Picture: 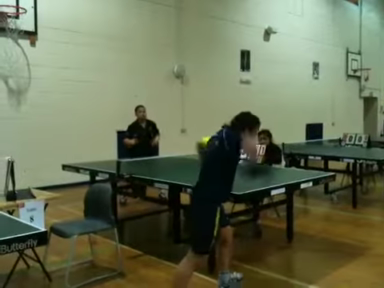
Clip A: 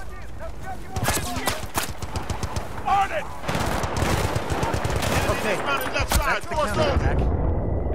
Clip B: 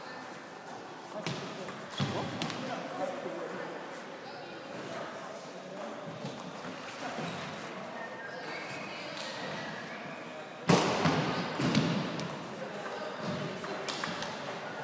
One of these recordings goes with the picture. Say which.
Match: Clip B